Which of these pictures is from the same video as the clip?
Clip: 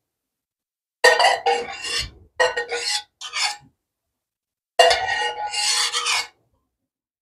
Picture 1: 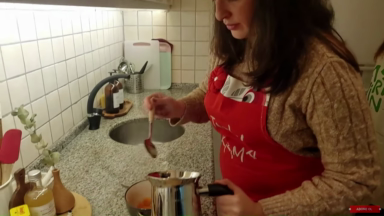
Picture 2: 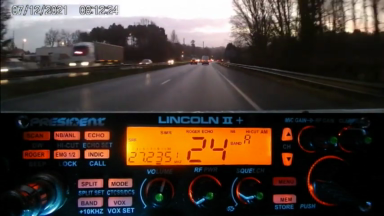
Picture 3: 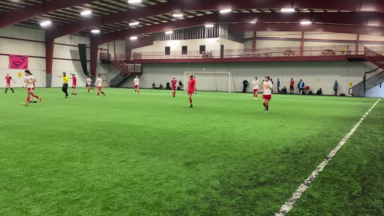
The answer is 1